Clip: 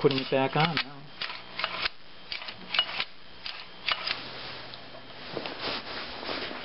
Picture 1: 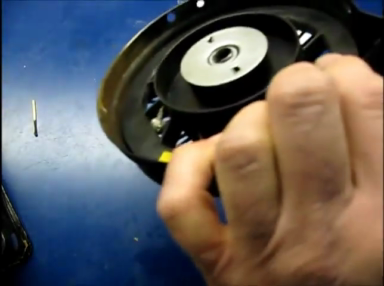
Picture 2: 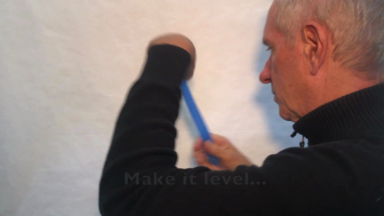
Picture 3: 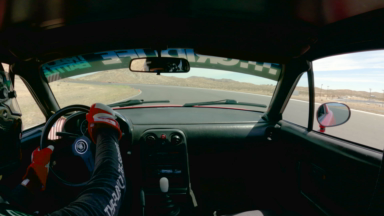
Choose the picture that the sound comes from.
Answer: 1